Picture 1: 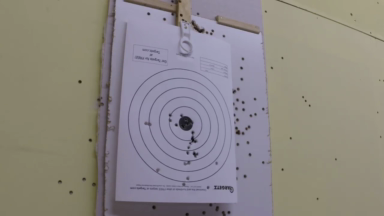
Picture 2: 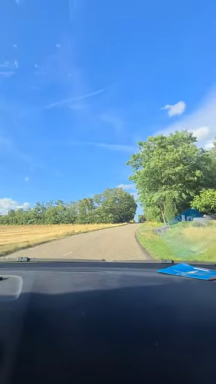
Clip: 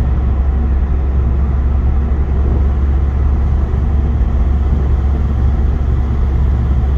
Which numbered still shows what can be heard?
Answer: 2